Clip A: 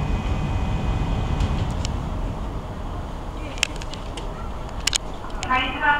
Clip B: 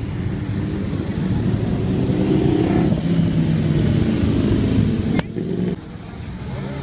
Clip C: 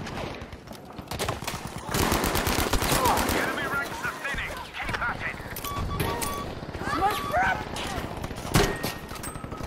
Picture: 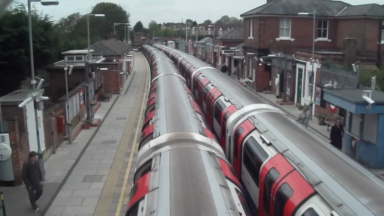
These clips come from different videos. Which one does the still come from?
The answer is A